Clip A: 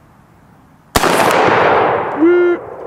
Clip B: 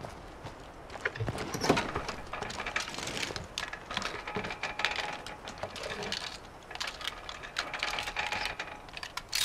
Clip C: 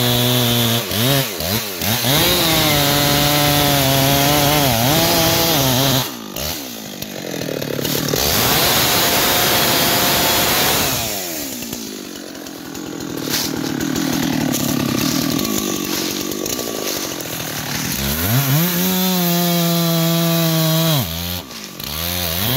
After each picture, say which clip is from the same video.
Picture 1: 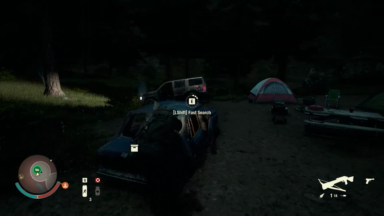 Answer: B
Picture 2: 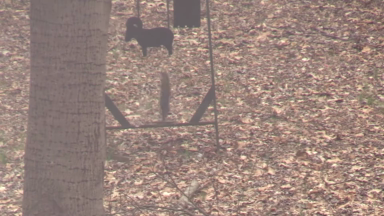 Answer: A